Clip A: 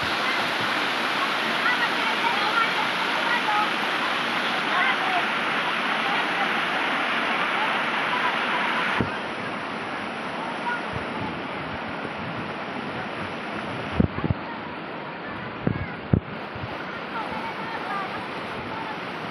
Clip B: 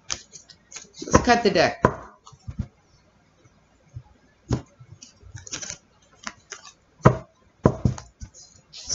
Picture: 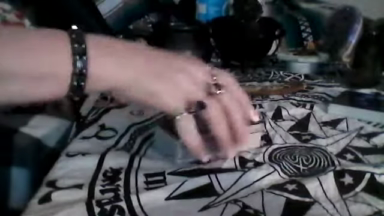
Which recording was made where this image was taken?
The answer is B